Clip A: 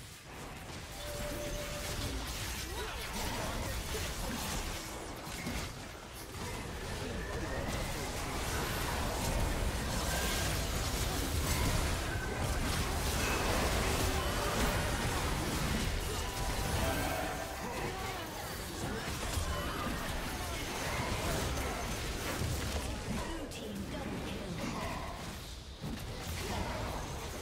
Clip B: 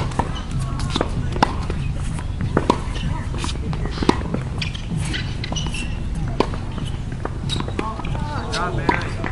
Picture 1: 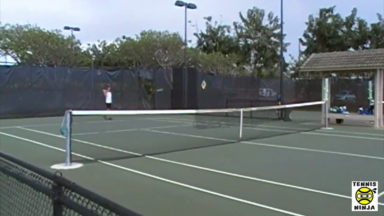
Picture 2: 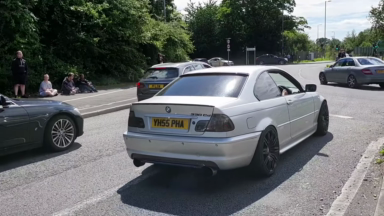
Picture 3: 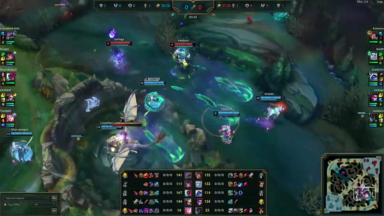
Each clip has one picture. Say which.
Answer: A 3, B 1